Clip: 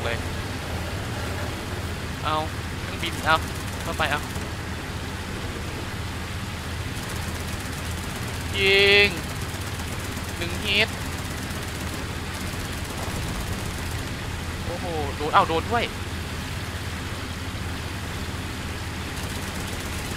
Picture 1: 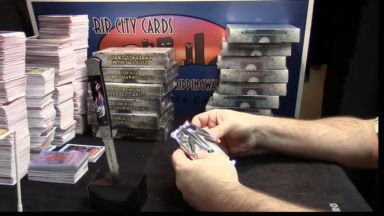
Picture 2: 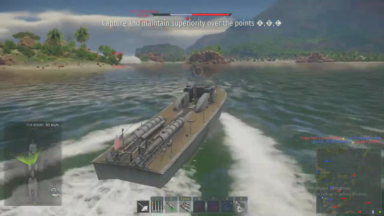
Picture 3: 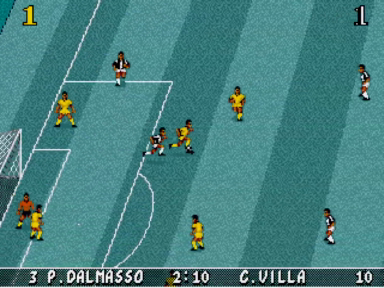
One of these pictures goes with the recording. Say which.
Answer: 2